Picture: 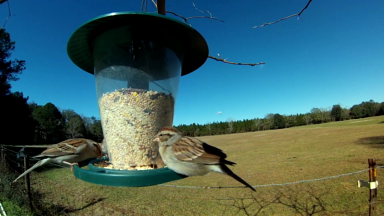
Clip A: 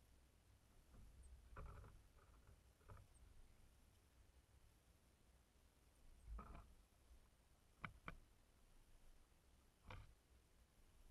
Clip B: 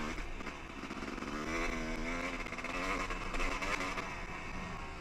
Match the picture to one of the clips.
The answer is A